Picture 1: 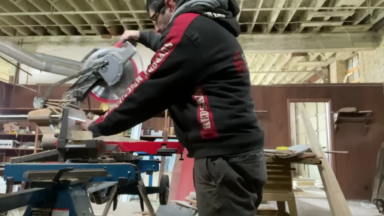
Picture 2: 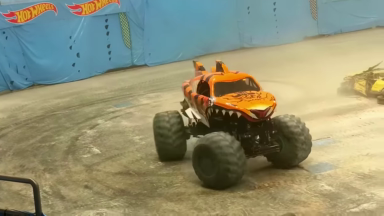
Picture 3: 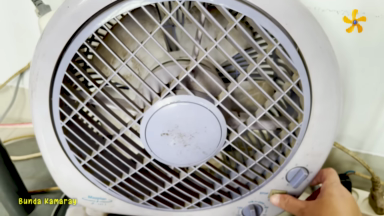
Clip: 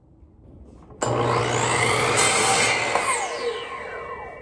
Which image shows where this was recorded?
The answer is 1